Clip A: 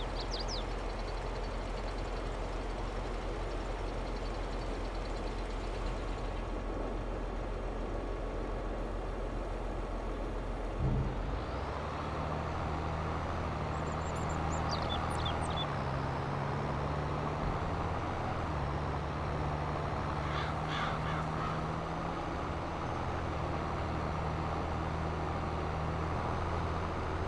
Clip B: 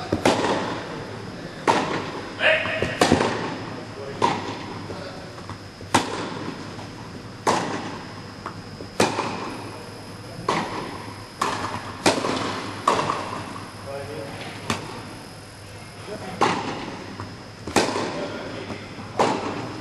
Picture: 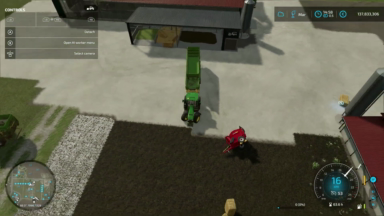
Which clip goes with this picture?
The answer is A